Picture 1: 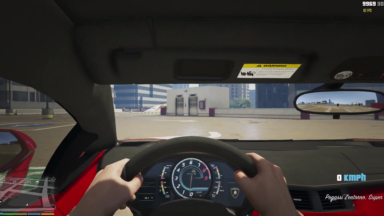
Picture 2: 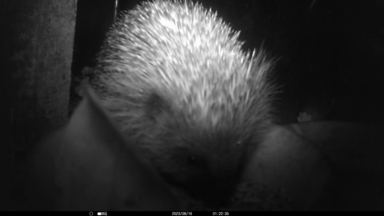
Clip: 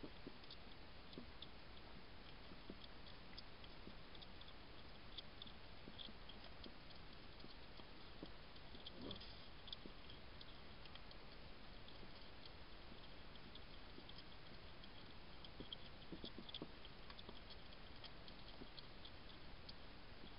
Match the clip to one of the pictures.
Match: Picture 2